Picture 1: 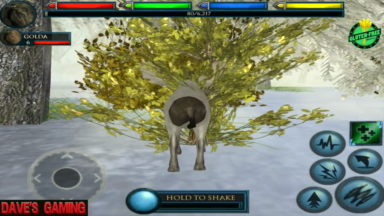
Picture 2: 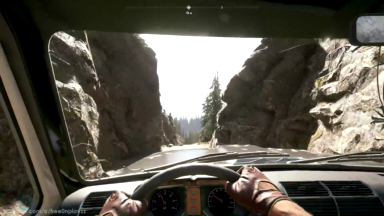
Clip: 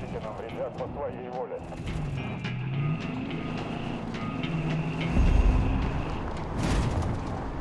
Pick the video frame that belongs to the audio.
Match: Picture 2